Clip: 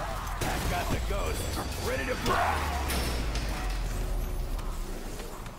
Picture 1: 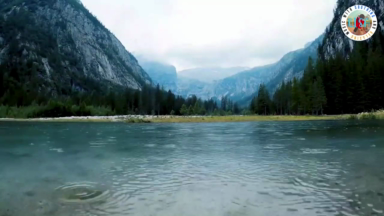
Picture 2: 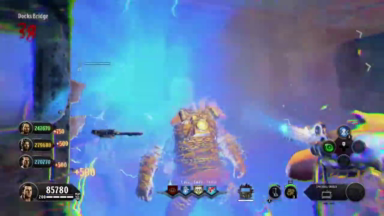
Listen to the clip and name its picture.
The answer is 2